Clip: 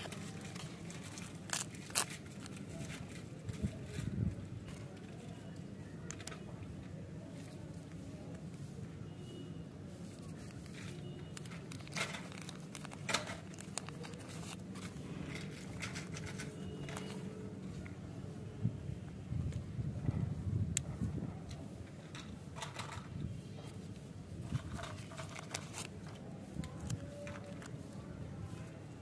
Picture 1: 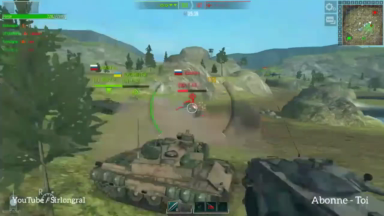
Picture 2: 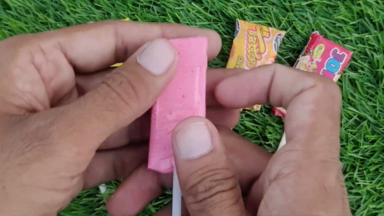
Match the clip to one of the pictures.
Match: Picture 2